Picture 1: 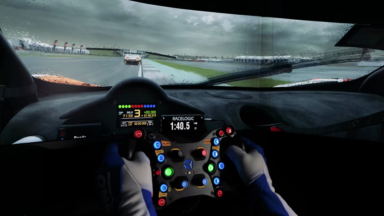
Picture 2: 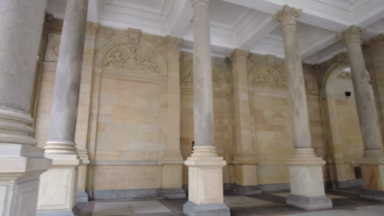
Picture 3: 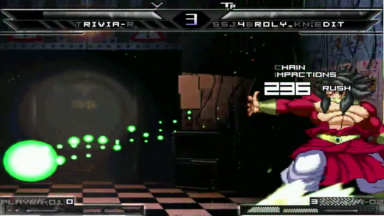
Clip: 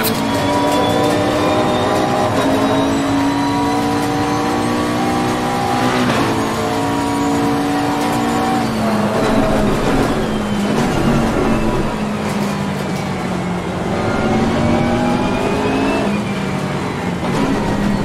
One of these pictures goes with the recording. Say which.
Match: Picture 1